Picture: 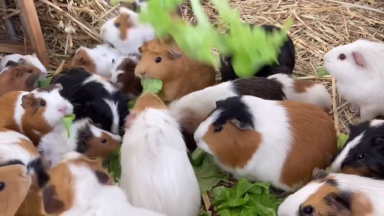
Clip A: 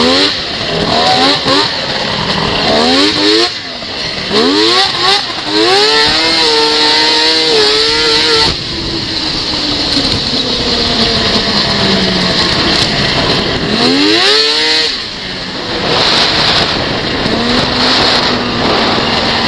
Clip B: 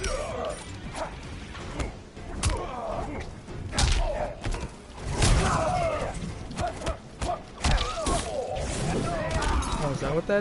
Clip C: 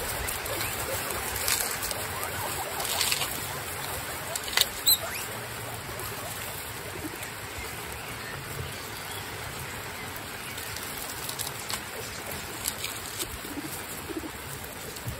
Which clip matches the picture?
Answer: C